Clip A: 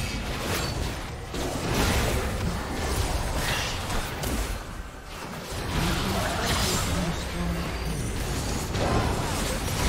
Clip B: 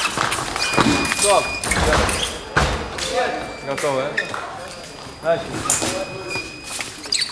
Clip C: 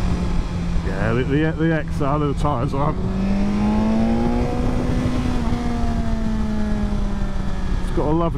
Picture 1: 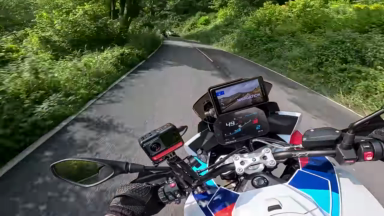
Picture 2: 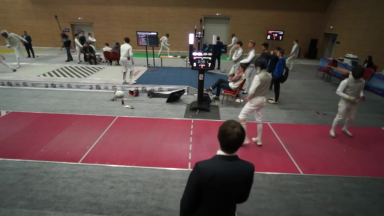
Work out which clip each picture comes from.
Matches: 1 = C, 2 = B